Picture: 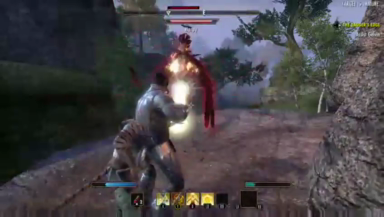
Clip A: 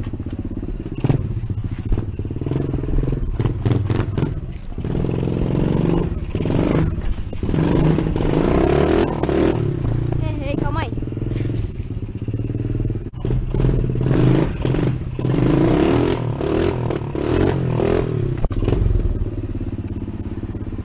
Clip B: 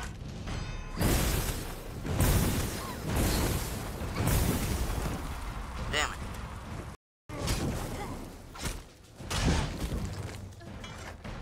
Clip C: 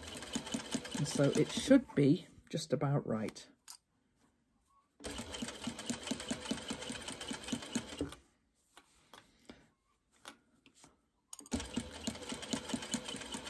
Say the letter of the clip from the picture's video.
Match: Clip B